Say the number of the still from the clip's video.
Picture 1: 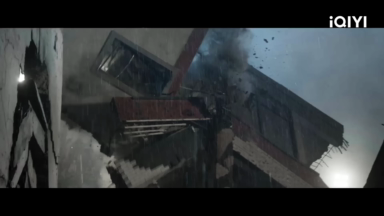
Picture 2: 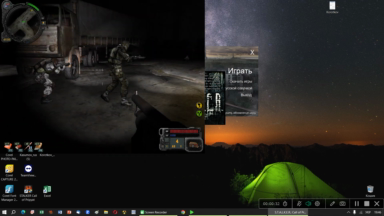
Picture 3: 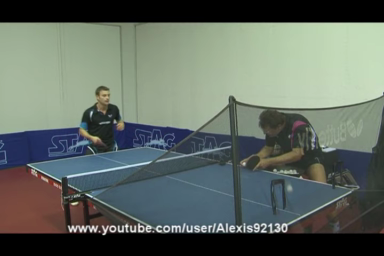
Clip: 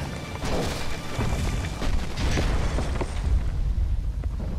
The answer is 1